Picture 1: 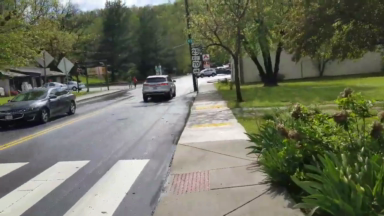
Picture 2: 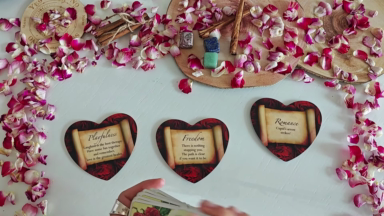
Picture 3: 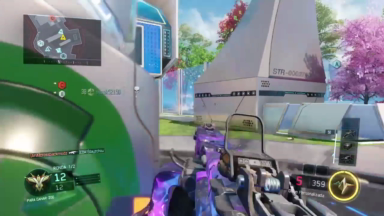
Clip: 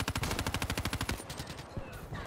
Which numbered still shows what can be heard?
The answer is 3